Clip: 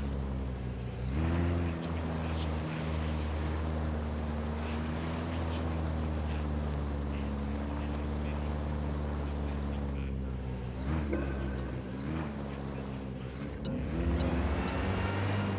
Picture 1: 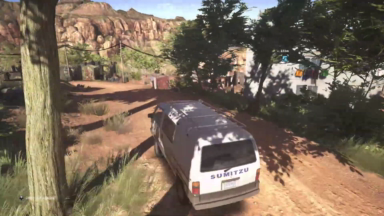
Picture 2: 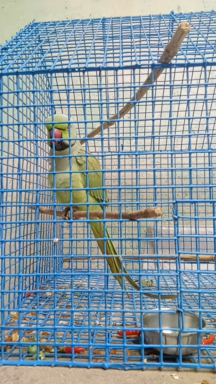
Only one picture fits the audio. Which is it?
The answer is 1